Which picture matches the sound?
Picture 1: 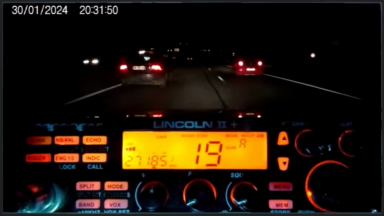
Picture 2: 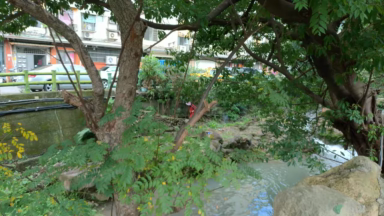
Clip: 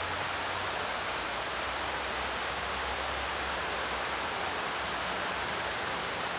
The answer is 2